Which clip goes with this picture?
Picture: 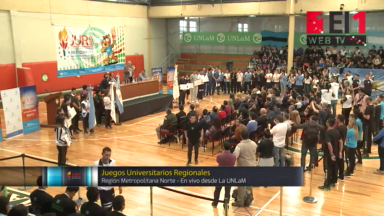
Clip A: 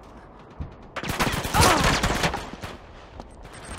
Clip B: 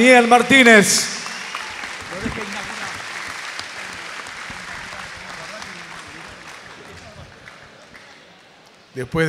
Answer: B